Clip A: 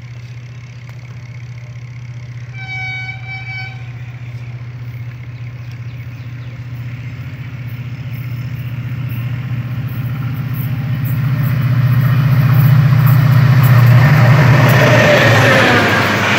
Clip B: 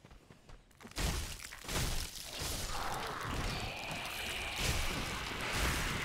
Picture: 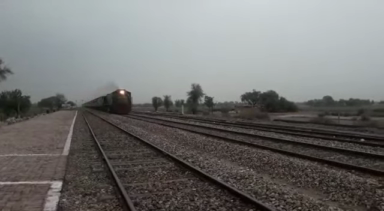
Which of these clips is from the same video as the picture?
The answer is A